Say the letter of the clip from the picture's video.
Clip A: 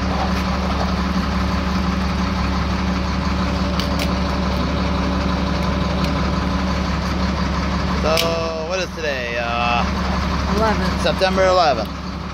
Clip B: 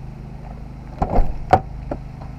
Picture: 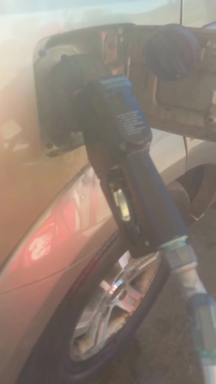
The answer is A